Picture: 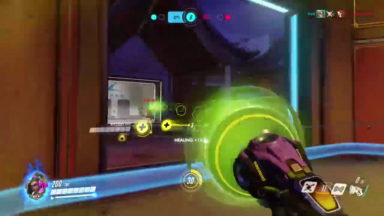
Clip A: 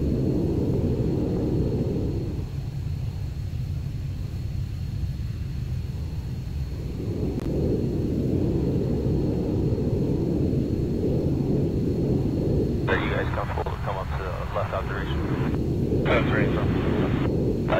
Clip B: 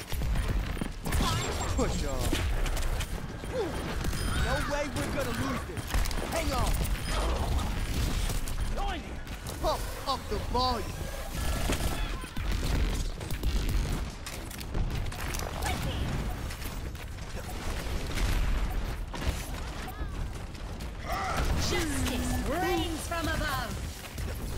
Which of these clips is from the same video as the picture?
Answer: B